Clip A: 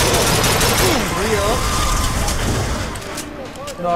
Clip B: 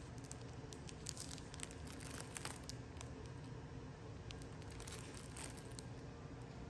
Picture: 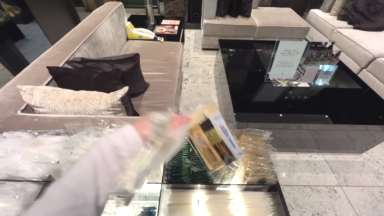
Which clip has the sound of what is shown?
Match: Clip B